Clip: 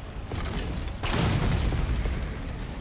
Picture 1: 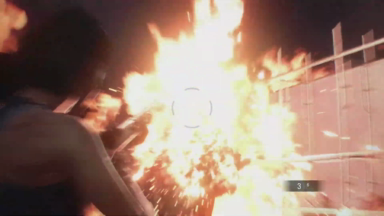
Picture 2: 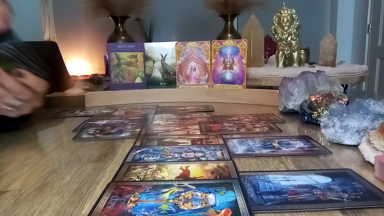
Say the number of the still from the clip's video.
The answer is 1